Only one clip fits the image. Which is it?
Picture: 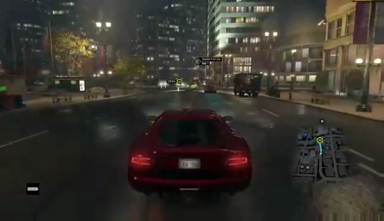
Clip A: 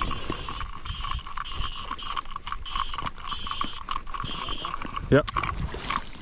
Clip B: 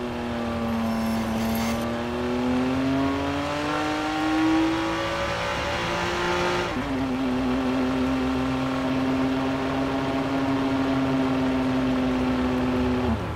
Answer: B